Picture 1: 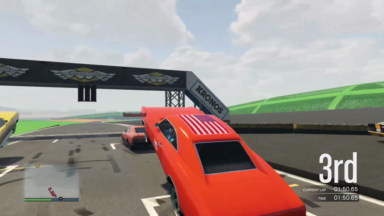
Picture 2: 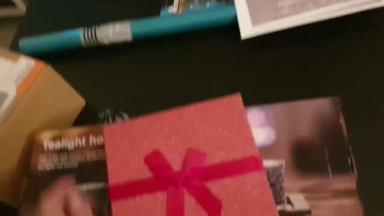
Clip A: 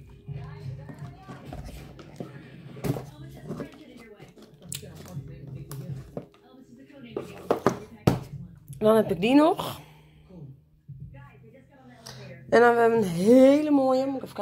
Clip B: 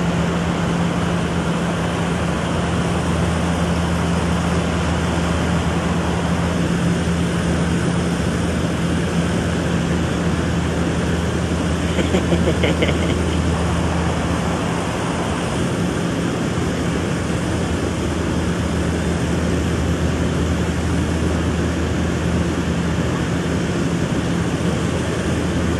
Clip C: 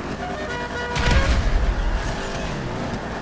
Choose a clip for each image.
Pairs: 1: C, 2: A